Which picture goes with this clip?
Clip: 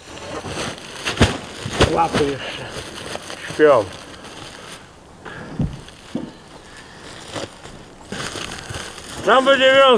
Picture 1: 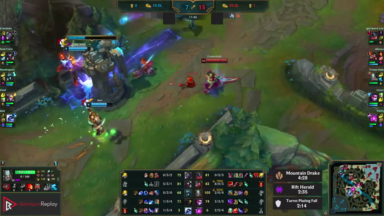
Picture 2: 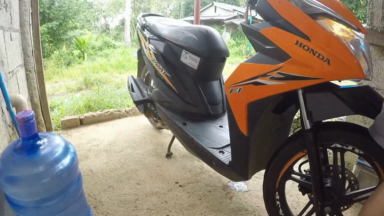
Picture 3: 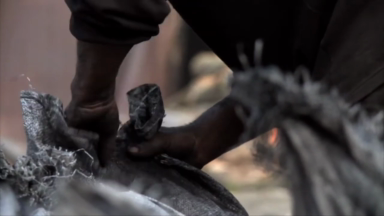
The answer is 3